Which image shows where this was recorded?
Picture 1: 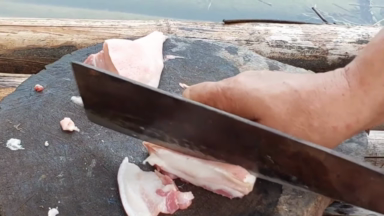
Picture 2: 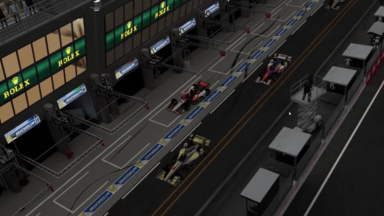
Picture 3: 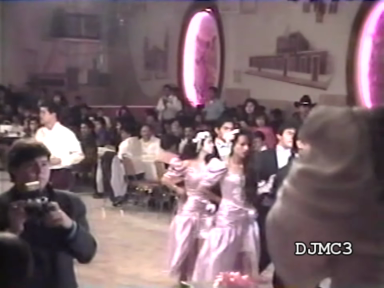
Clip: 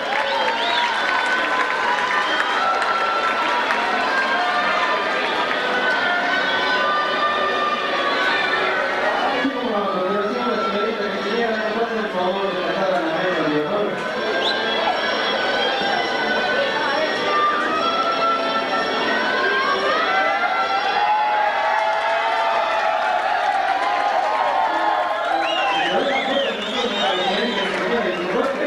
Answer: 3